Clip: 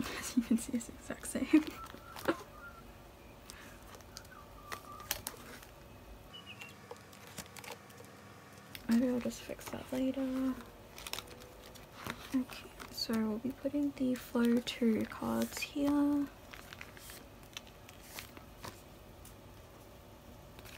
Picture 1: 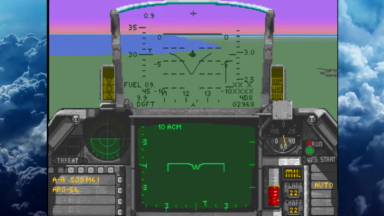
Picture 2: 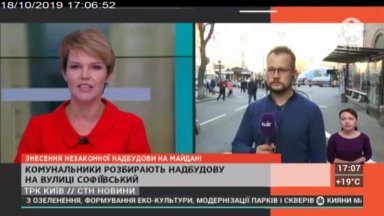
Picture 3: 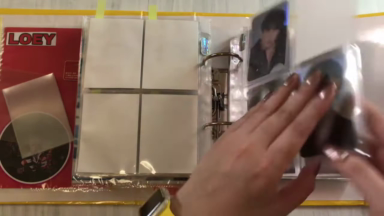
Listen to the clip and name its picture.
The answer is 3